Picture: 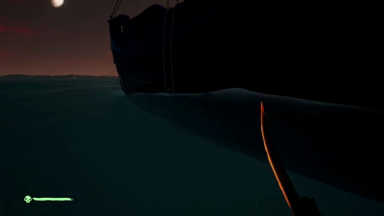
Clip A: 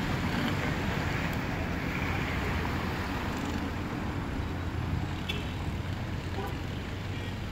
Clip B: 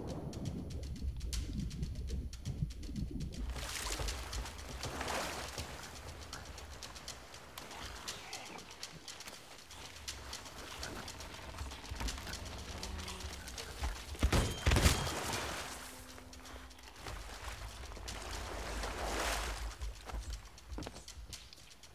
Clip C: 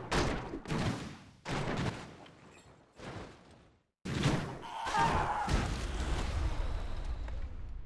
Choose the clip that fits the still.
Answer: B